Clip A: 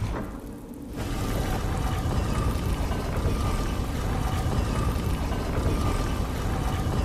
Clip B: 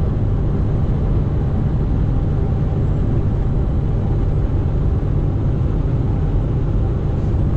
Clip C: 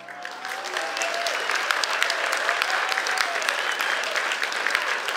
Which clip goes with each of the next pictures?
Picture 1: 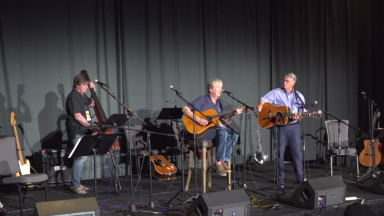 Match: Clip C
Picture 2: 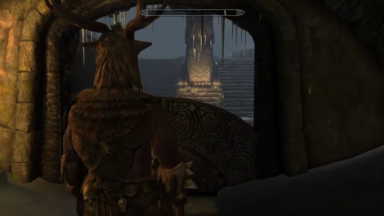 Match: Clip A